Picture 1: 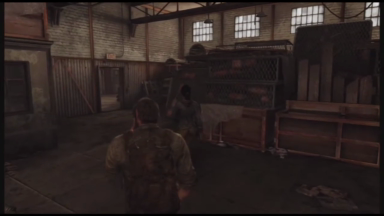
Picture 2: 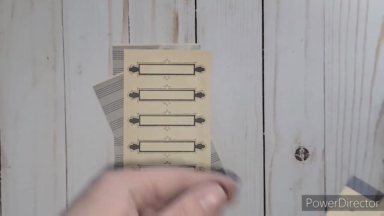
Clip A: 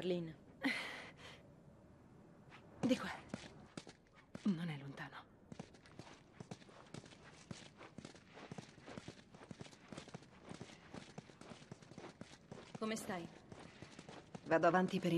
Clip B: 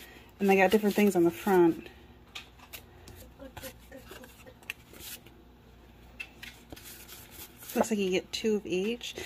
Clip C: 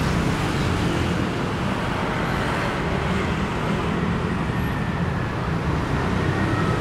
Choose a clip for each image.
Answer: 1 A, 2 B